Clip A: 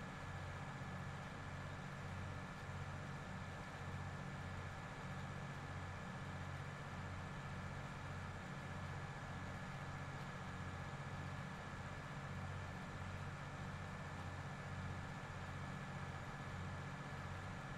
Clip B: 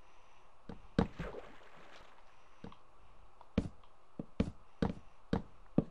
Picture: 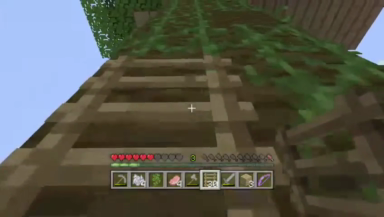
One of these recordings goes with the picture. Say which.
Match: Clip B